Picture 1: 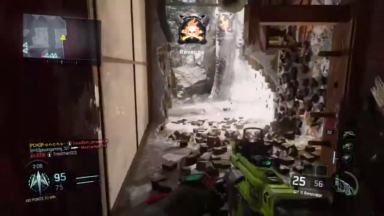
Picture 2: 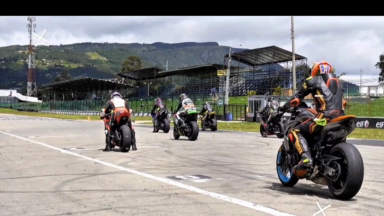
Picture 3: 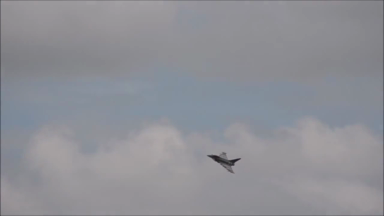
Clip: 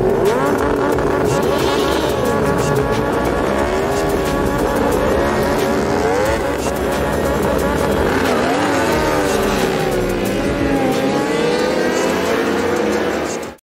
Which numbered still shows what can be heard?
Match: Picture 2